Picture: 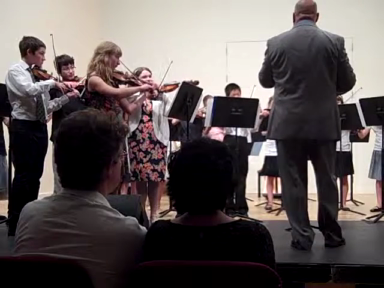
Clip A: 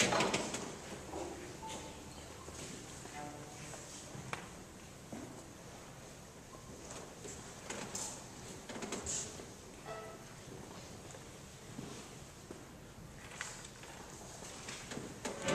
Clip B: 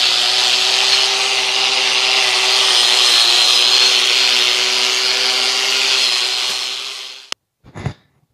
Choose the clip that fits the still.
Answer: A